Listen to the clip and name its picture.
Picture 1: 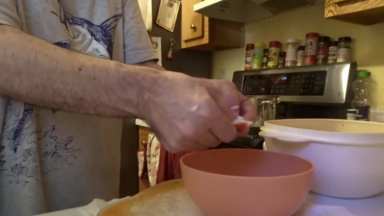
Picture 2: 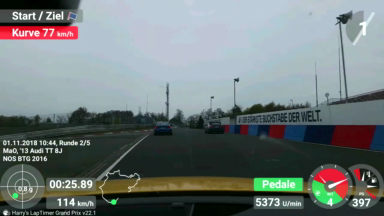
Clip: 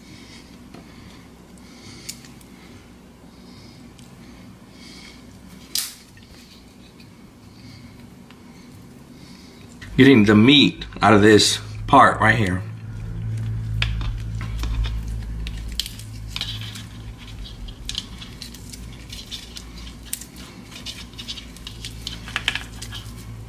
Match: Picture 1